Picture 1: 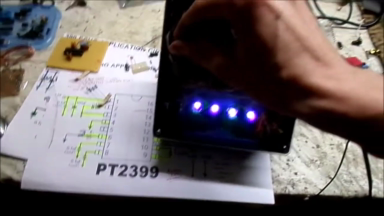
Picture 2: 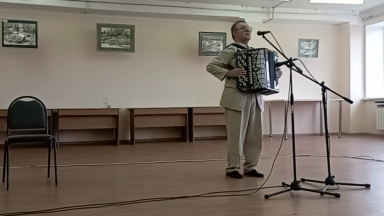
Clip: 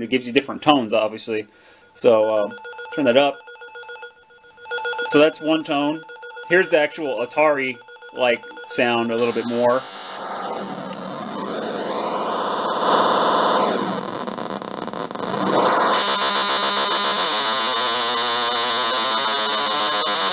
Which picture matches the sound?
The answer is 1